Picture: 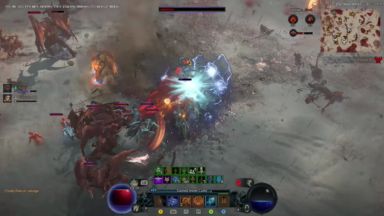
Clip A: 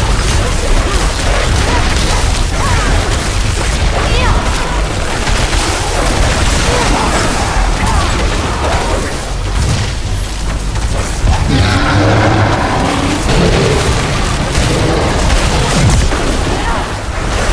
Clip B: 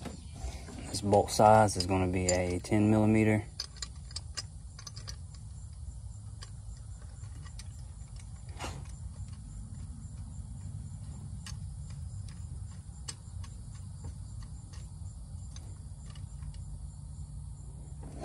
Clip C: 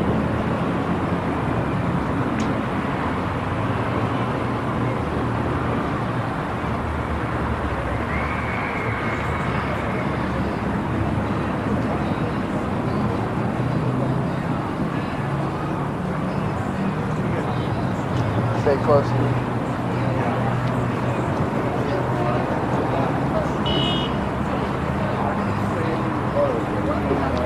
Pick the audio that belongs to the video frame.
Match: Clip A